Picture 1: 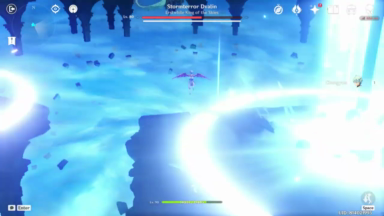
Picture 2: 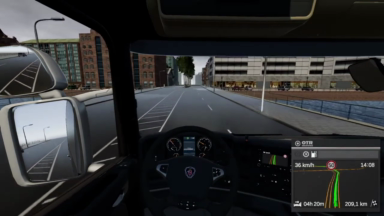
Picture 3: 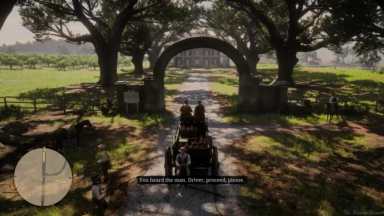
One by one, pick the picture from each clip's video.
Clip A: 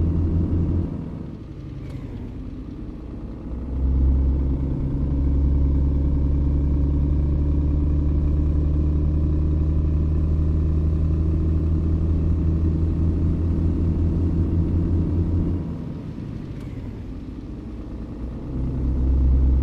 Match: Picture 2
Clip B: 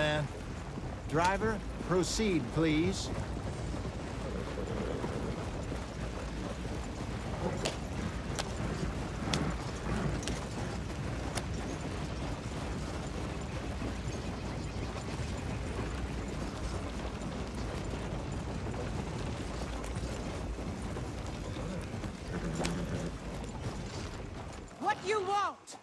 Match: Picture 3